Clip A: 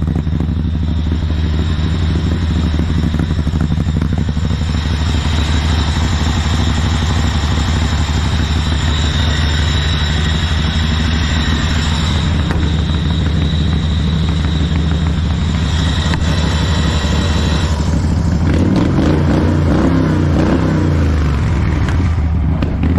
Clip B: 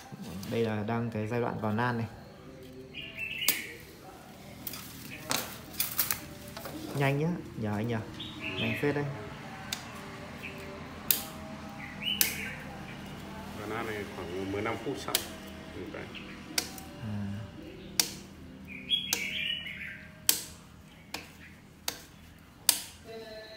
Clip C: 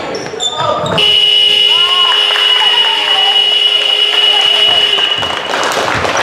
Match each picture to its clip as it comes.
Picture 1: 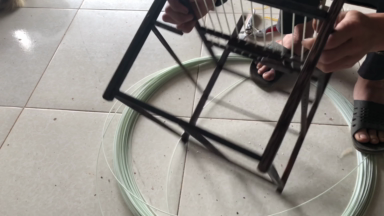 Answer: B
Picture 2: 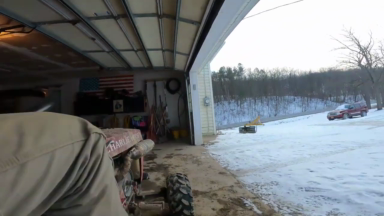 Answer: A